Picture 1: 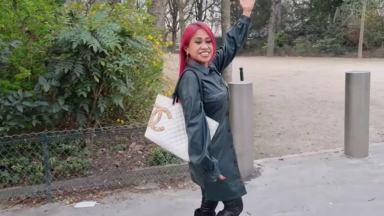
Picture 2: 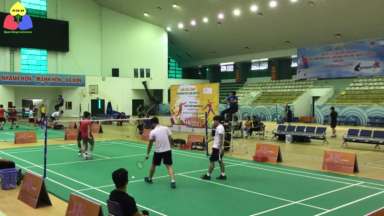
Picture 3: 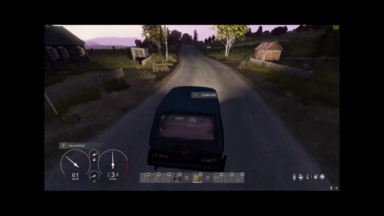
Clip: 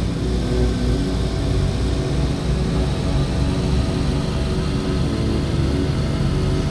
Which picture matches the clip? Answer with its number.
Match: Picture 3